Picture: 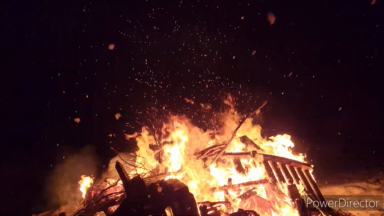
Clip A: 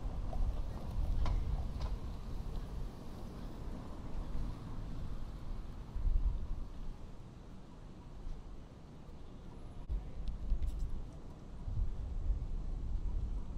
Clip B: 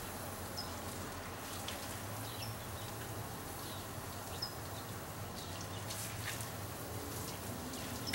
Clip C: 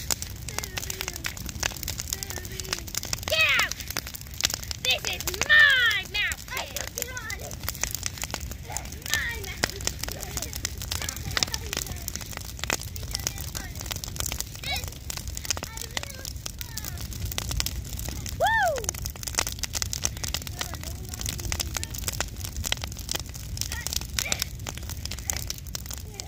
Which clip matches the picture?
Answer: C